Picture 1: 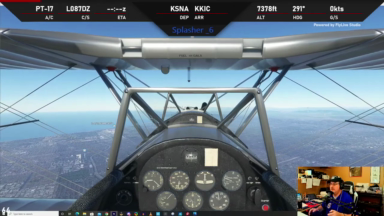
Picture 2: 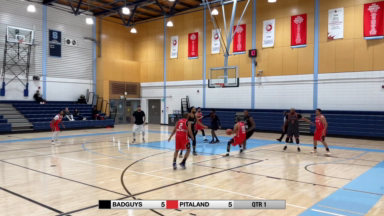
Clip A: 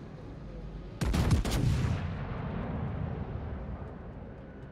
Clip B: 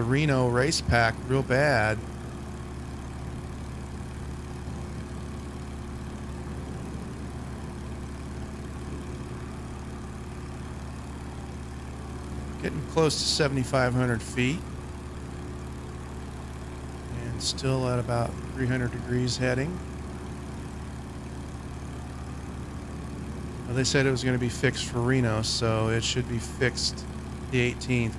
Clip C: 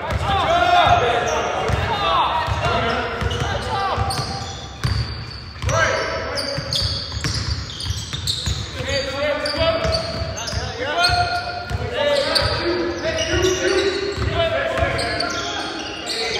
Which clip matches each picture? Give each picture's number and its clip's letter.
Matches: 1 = B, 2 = C